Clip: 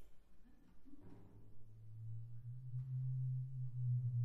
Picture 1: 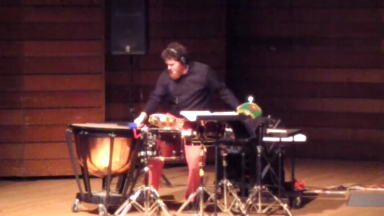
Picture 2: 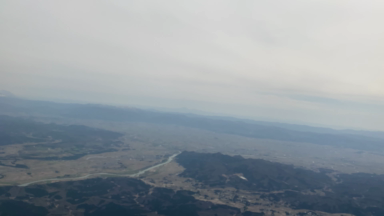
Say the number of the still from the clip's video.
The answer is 1